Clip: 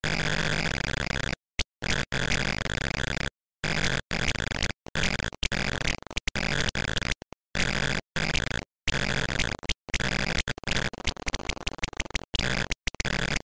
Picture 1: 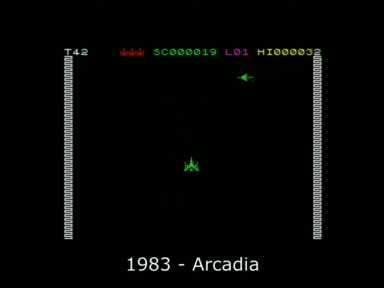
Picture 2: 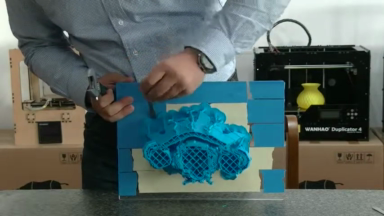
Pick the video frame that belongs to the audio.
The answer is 1